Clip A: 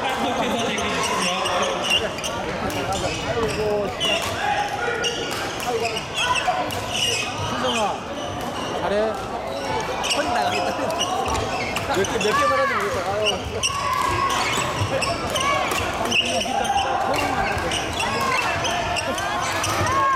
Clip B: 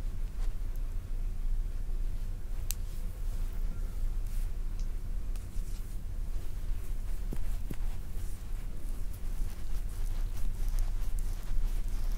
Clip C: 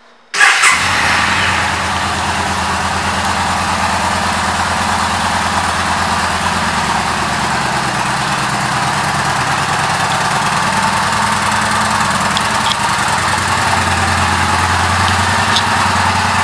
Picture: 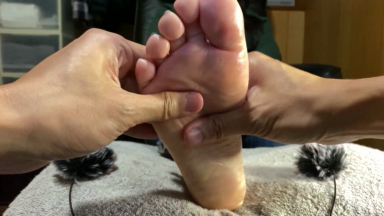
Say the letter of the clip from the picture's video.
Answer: B